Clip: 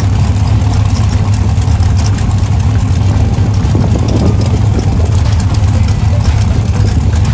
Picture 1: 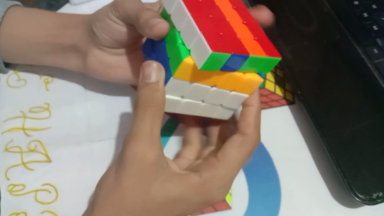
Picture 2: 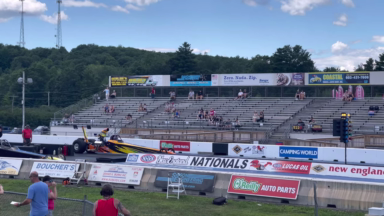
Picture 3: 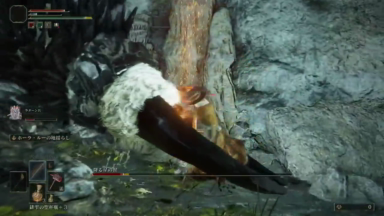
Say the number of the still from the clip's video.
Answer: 2